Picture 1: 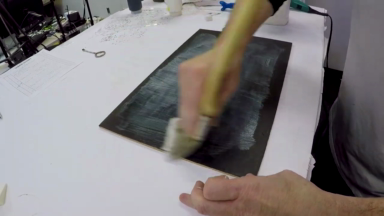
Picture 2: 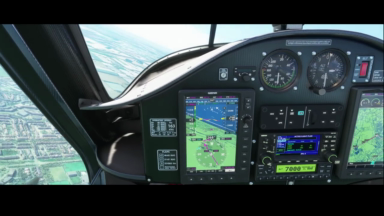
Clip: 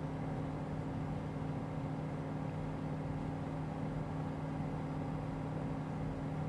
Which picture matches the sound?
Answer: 2